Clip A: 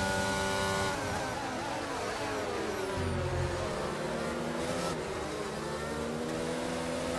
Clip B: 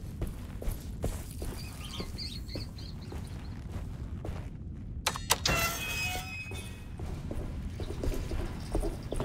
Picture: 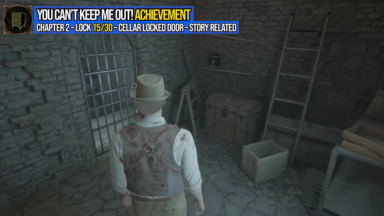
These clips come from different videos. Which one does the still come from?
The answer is B